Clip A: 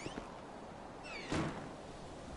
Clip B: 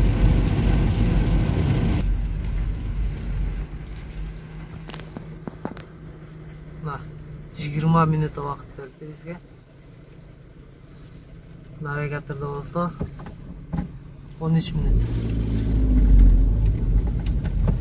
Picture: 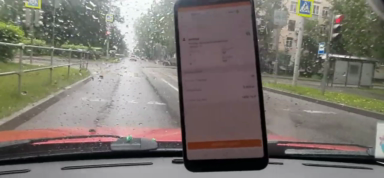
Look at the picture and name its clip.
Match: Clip B